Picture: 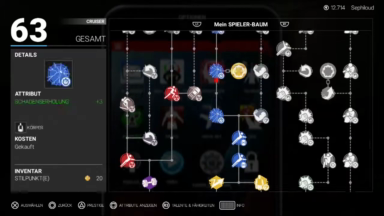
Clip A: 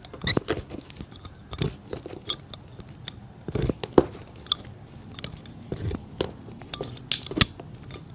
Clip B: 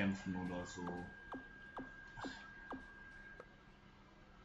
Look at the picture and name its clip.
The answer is B